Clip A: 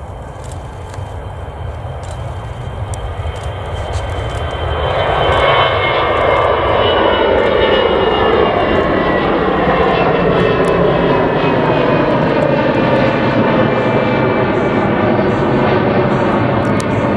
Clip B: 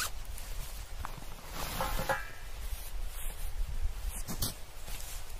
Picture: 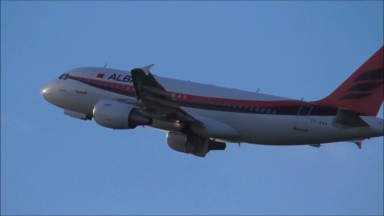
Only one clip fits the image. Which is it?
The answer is A